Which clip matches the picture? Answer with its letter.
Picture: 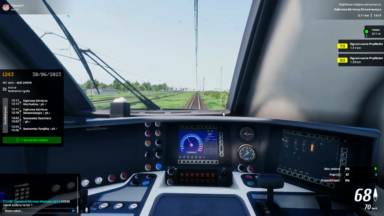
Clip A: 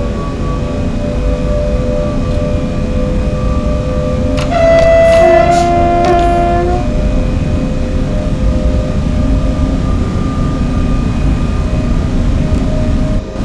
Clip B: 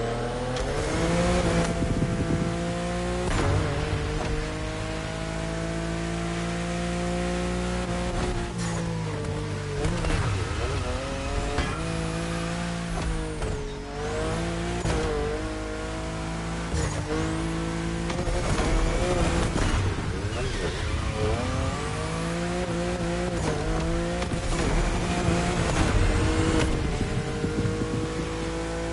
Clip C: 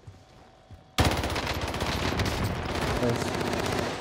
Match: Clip A